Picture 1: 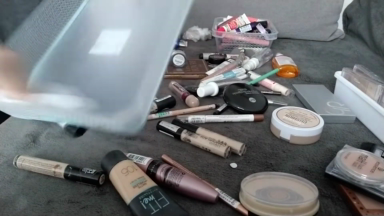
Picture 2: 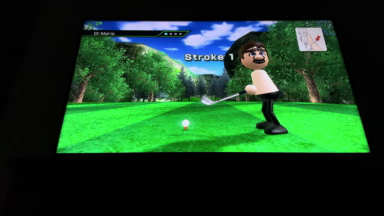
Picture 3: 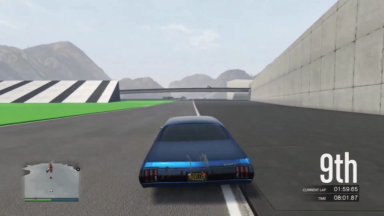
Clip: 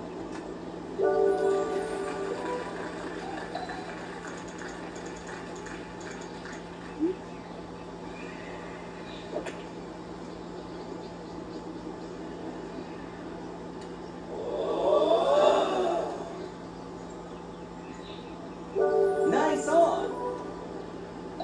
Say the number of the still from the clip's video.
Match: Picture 2